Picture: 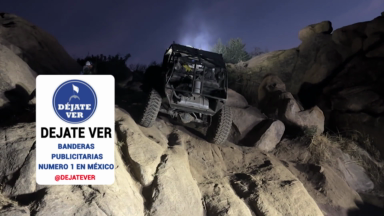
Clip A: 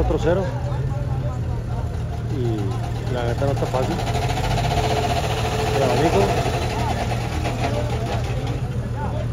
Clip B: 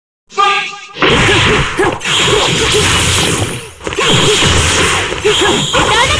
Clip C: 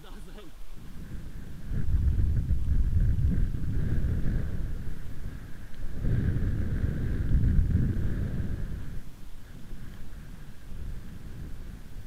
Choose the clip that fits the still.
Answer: A